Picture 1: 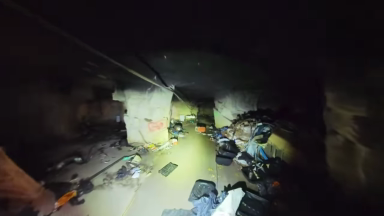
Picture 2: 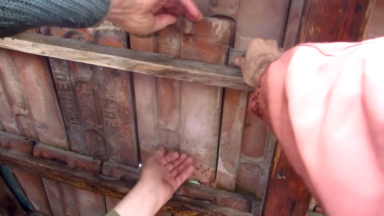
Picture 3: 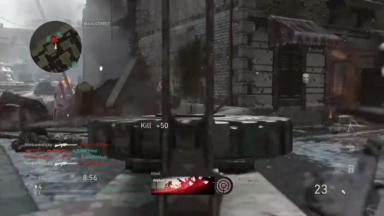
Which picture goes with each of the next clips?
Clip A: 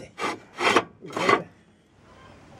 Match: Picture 2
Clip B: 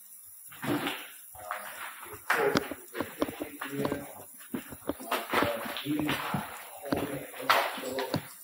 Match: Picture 1